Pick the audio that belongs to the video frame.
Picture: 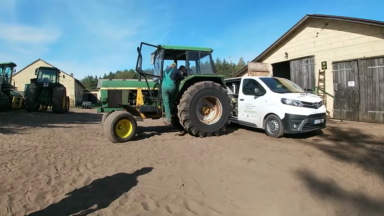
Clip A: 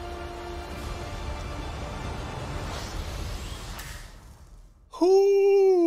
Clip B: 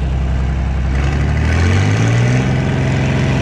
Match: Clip B